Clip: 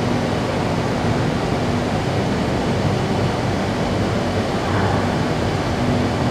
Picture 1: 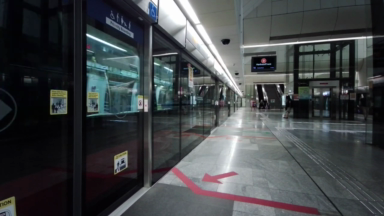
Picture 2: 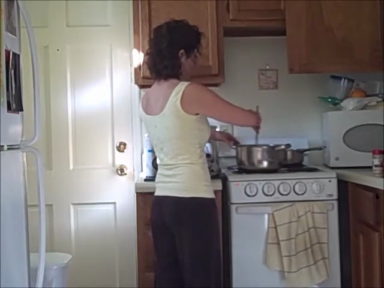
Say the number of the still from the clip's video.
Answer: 1